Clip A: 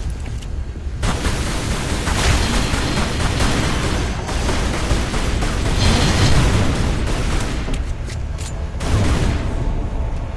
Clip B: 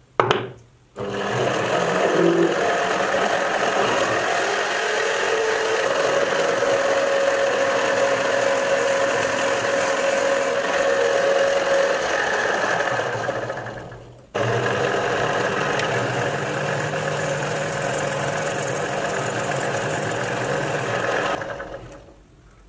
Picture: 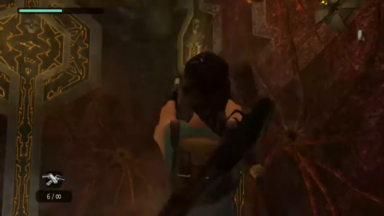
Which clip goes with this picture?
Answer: A